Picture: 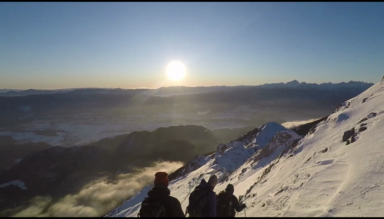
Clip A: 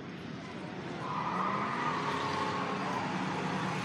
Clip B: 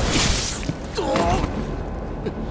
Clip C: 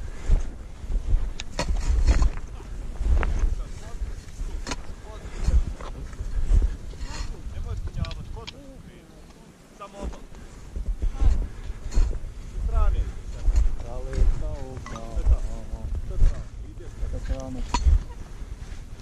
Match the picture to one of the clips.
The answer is C